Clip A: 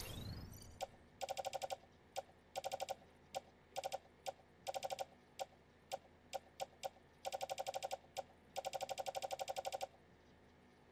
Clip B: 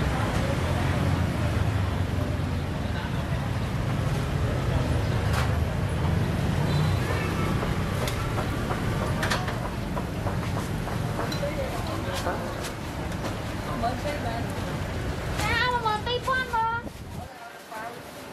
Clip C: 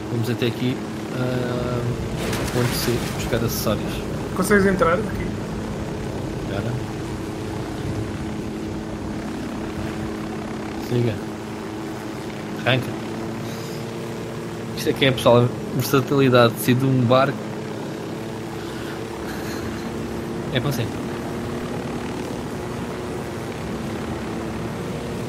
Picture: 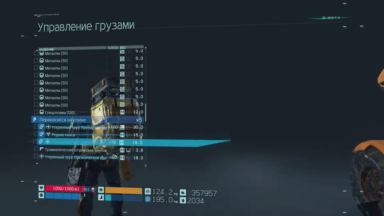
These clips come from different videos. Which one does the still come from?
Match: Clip A